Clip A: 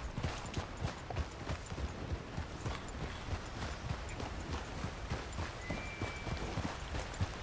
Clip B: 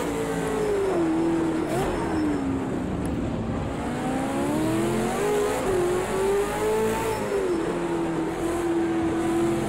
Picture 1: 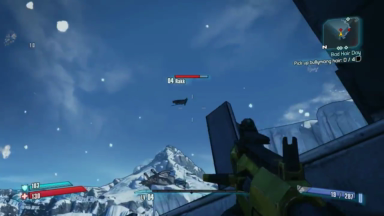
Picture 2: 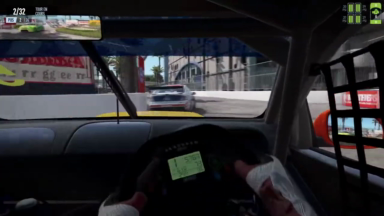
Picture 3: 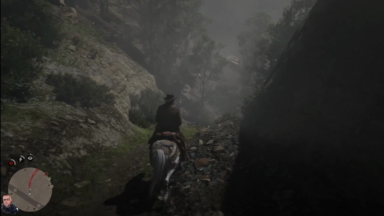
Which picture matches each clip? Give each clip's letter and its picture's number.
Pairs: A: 3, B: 2